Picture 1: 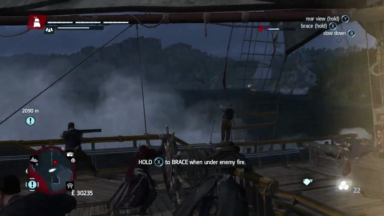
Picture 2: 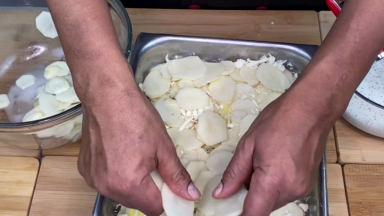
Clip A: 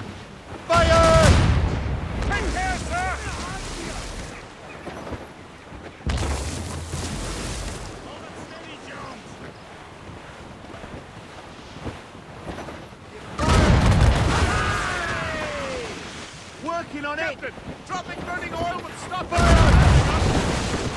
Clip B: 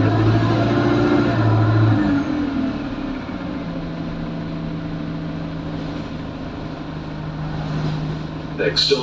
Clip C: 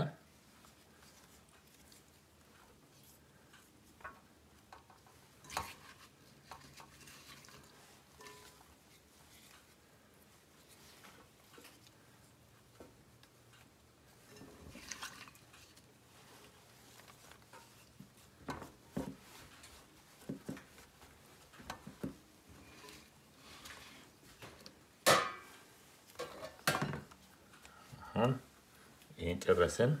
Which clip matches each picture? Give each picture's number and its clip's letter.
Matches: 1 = A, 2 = C